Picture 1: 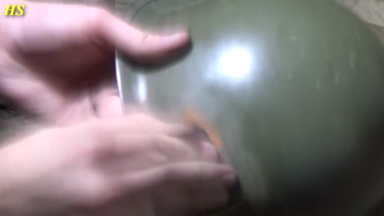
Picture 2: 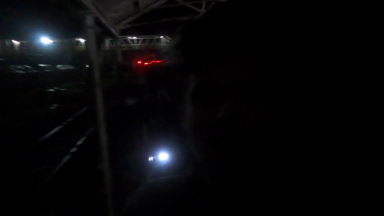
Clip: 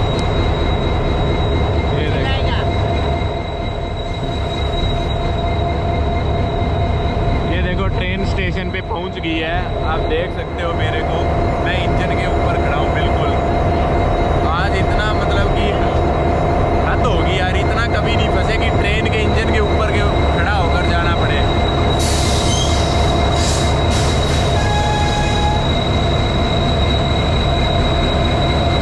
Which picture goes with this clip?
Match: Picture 2